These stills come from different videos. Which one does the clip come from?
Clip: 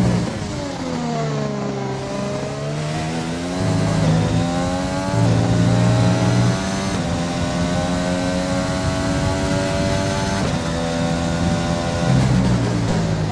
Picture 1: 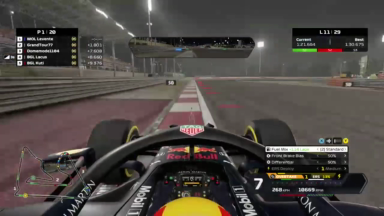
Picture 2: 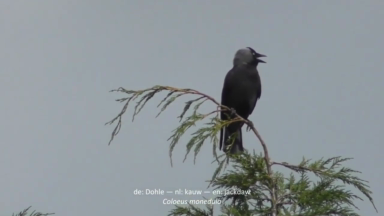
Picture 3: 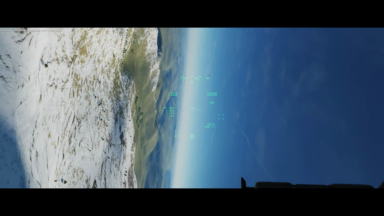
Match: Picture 1